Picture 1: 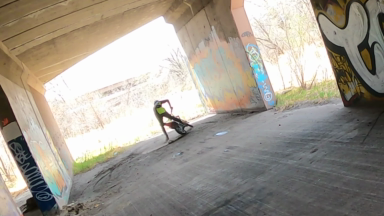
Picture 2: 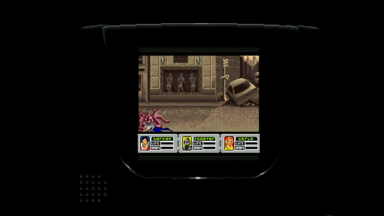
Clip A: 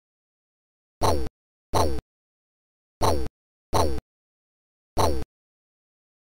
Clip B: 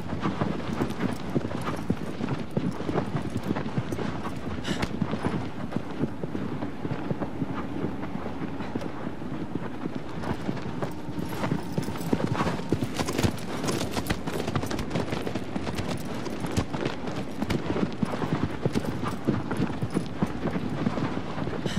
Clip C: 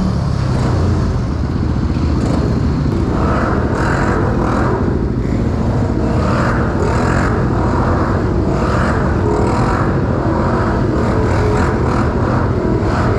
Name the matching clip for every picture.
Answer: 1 C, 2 A